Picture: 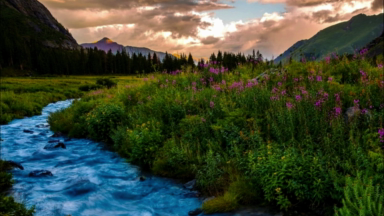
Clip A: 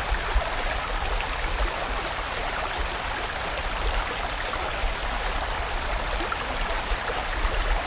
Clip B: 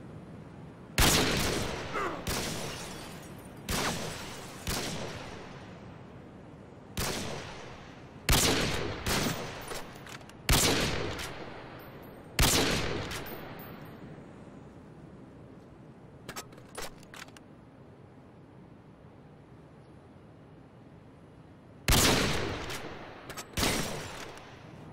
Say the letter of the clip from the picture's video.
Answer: A